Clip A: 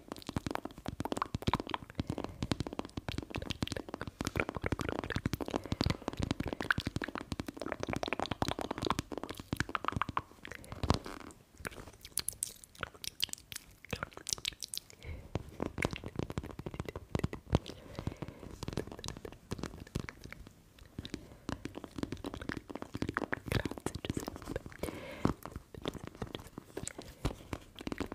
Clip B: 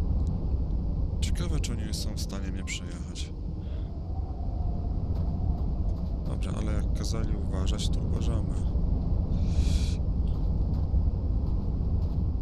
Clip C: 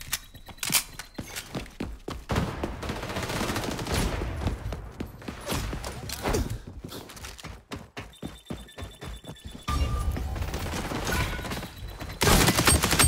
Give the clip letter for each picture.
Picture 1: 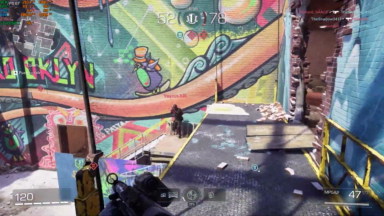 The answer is C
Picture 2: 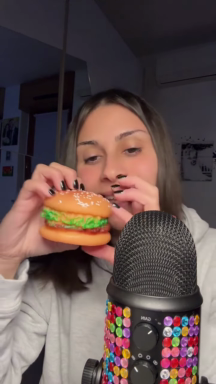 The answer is A